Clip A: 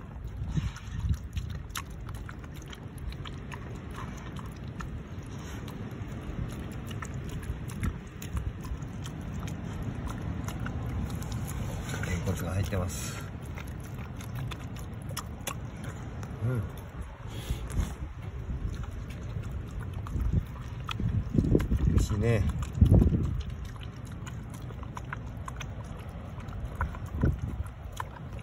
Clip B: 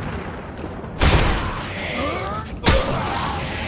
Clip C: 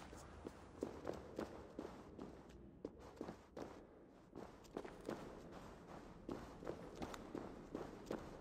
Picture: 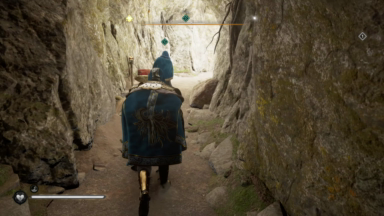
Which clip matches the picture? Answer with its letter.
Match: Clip C